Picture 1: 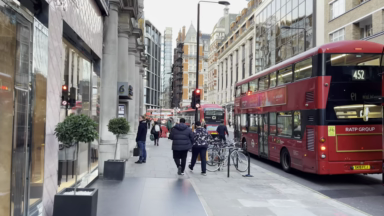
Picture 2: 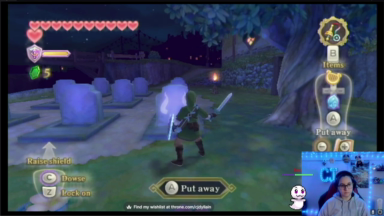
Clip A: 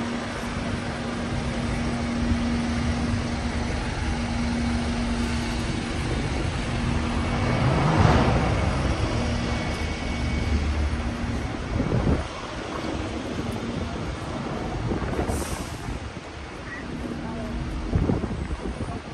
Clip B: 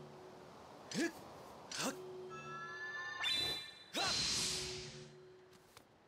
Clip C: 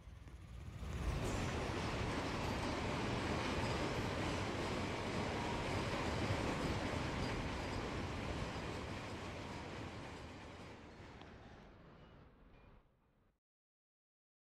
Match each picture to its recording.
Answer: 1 A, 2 B